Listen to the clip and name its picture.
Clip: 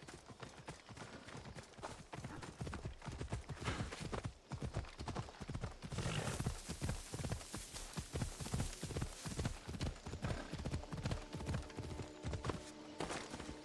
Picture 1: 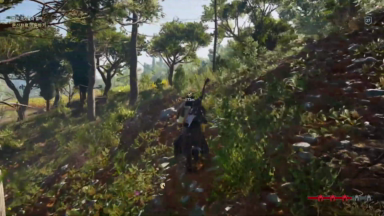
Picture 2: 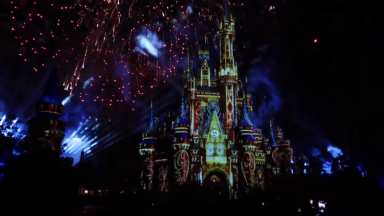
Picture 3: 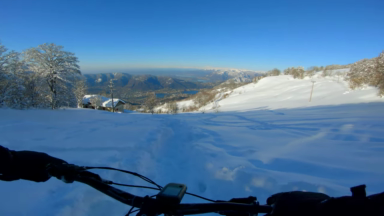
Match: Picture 1